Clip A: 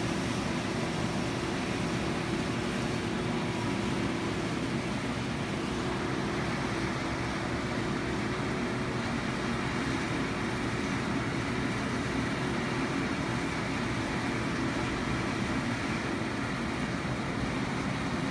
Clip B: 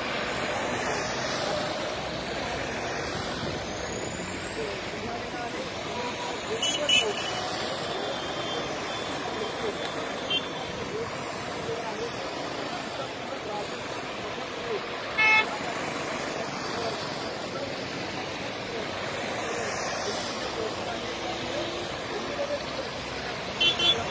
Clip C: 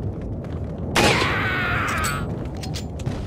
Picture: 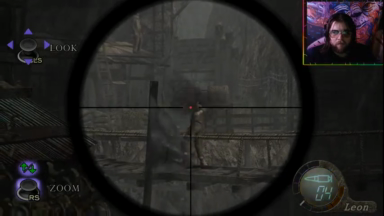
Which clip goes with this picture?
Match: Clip C